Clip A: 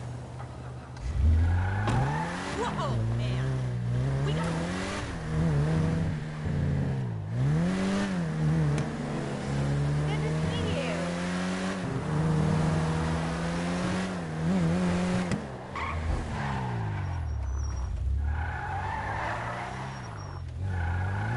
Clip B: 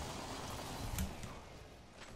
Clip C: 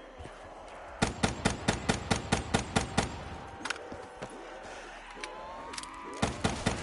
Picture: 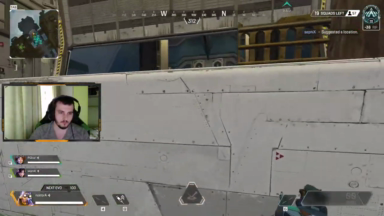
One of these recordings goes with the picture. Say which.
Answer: B